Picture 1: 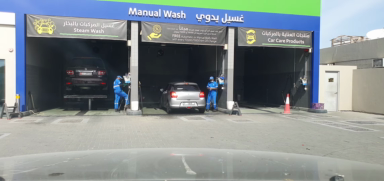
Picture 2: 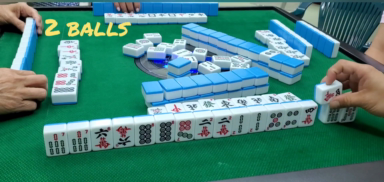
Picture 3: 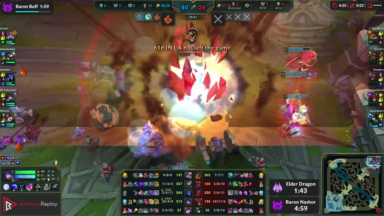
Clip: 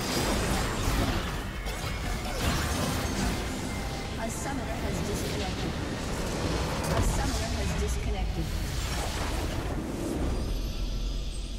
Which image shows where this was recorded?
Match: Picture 3